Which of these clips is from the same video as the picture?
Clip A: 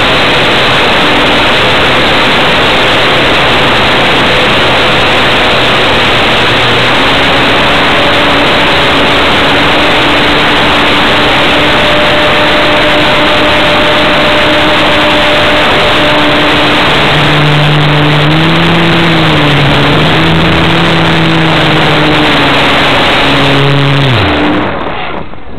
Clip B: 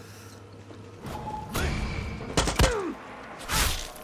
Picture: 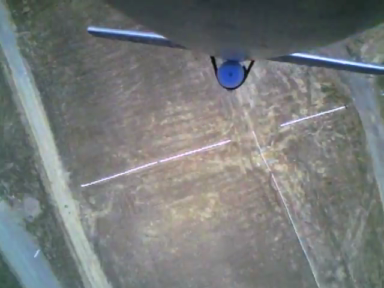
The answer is A